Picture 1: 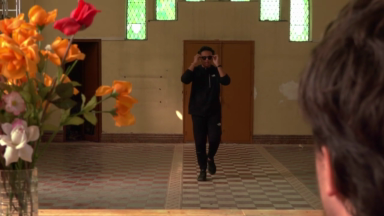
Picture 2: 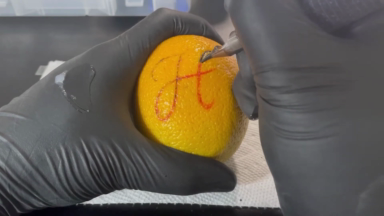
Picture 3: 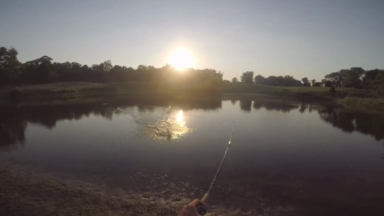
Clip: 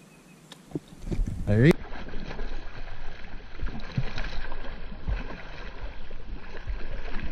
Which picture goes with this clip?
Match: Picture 3